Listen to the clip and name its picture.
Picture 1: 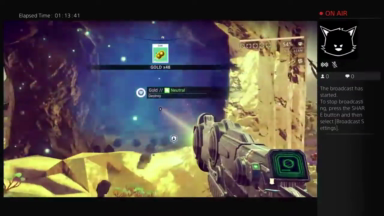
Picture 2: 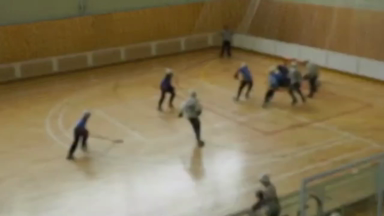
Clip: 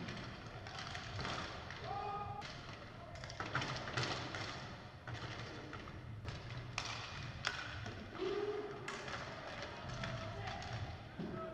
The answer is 2